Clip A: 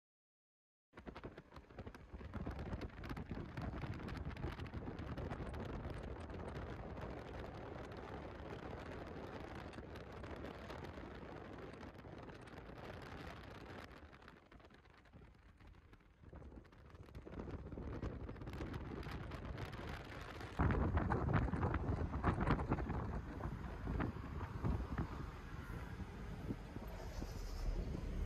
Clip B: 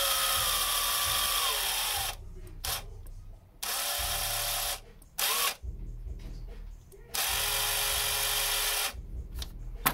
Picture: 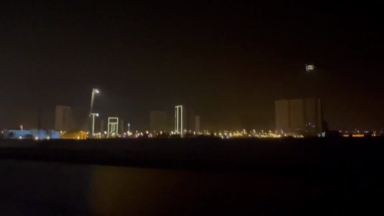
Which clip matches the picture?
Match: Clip A